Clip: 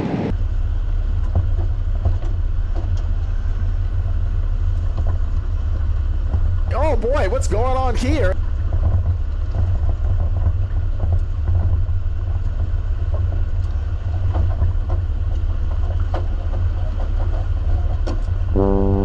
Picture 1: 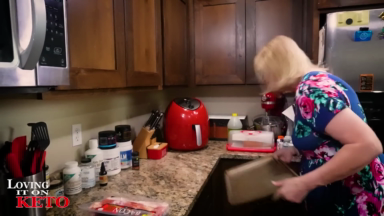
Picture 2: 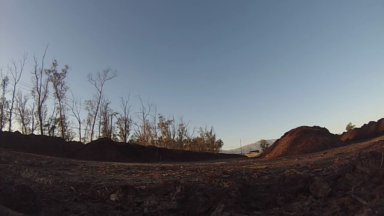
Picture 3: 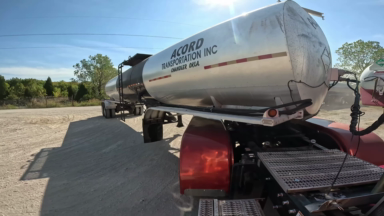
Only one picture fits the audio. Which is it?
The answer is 3